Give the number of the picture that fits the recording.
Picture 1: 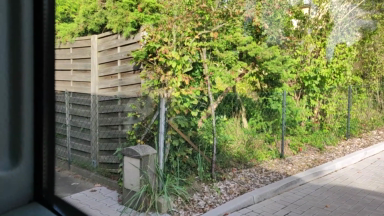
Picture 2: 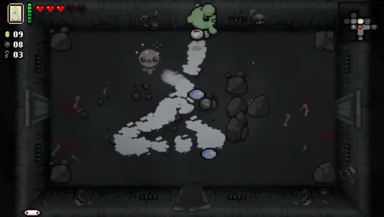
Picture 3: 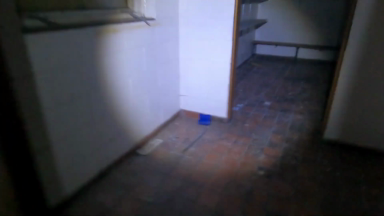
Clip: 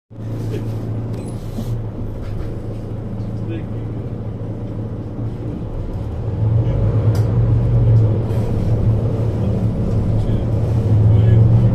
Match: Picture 1